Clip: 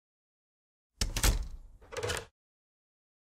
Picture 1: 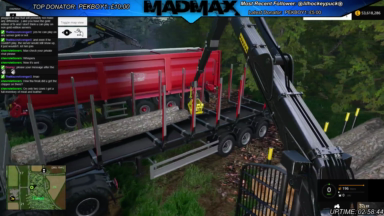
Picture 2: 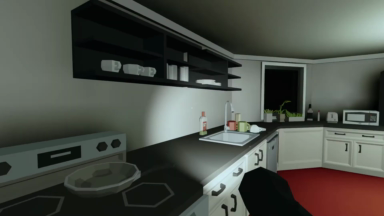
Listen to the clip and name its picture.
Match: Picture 2